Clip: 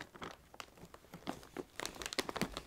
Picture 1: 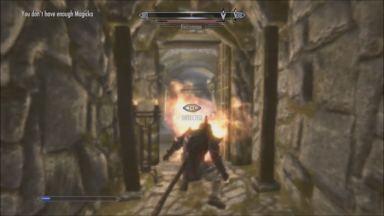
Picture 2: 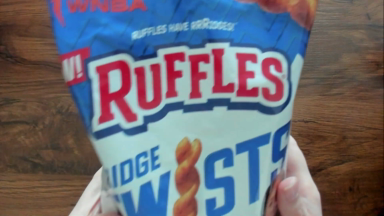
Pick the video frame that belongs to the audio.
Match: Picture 2